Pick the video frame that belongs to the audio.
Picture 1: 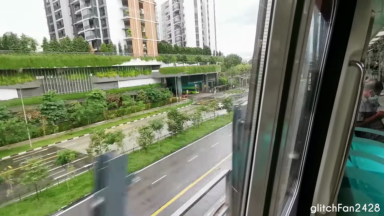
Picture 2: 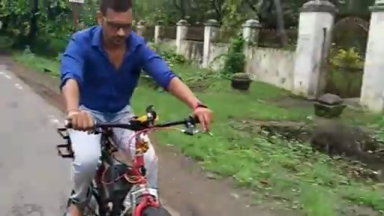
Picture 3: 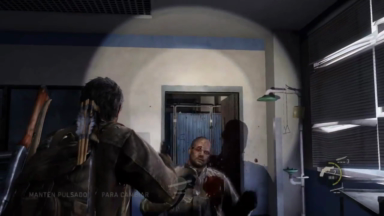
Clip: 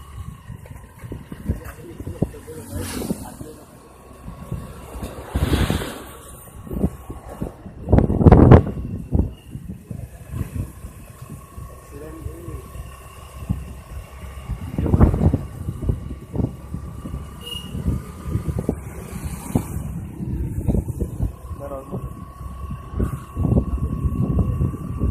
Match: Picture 2